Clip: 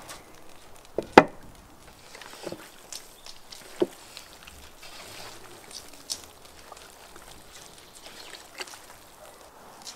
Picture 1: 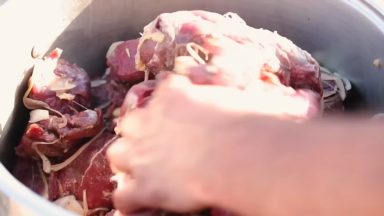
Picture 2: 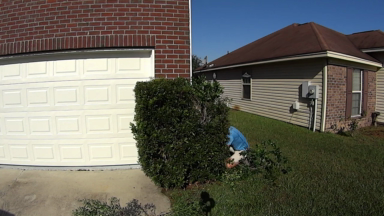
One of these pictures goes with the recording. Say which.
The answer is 1